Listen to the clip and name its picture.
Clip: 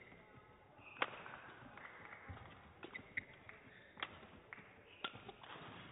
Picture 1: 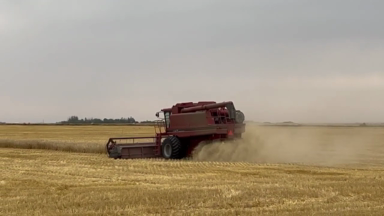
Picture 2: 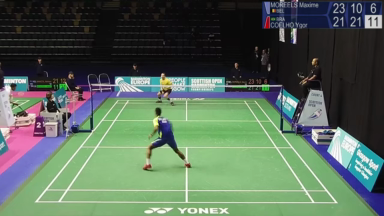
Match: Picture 2